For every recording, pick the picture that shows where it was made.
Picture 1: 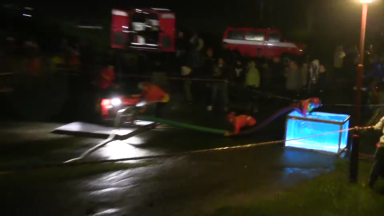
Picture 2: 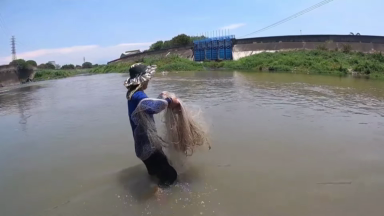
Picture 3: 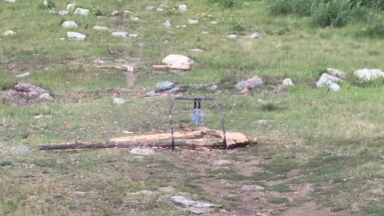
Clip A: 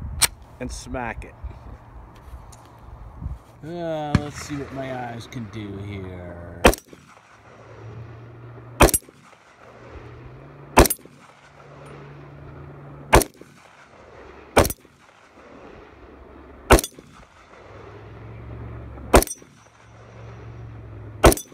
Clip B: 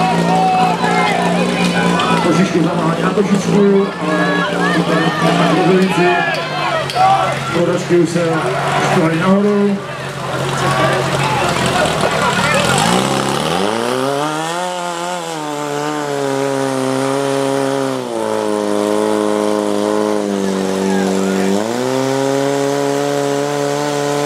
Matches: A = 3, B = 1